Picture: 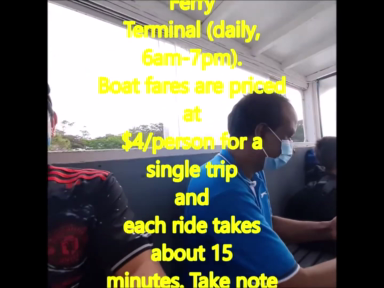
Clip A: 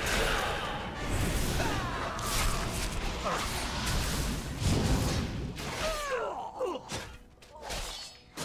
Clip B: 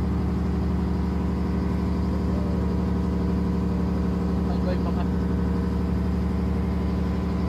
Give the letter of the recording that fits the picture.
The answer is B